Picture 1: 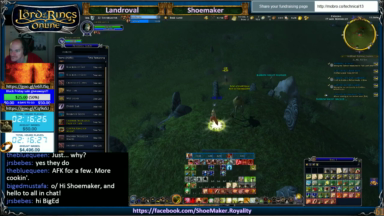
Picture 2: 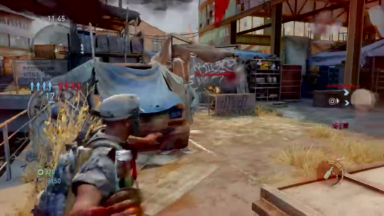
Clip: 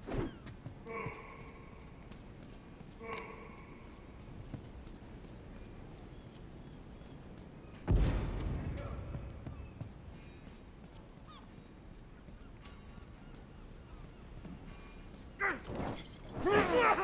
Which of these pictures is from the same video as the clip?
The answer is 2